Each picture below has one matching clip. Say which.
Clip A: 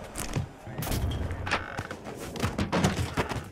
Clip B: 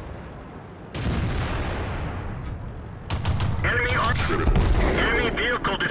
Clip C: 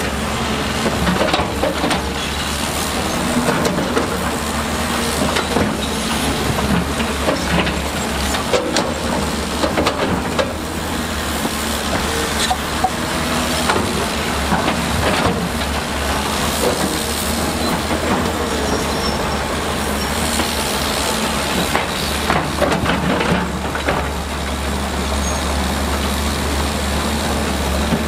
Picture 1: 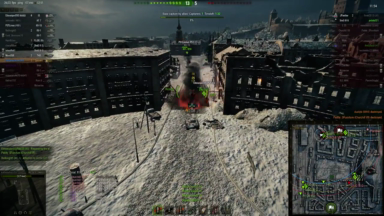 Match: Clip B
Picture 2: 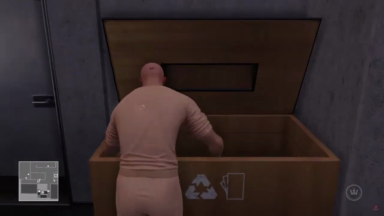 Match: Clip A